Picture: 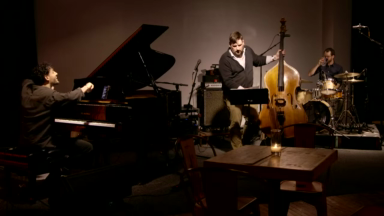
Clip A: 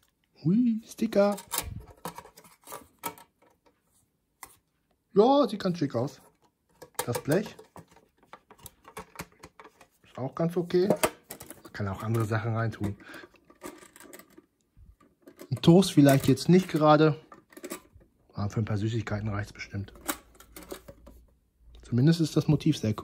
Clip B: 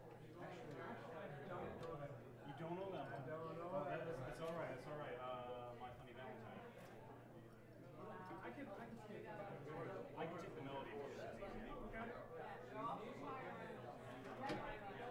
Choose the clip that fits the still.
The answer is B